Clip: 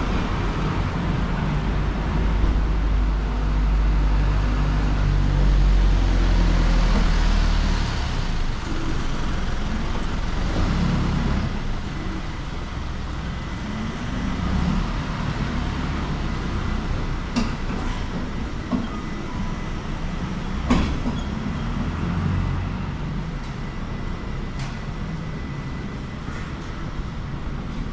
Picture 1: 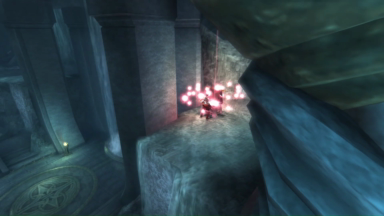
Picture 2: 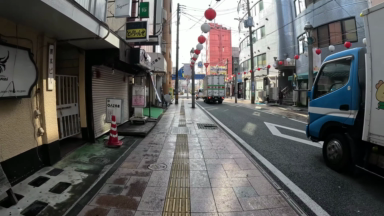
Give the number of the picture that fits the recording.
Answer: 2